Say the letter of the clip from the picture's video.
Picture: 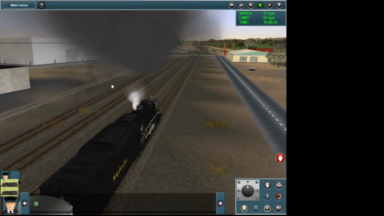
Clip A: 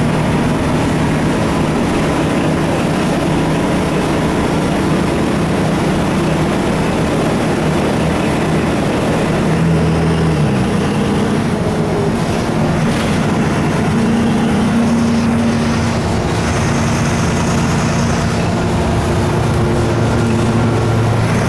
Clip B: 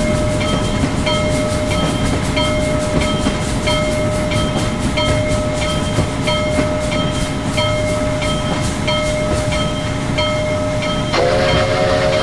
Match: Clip B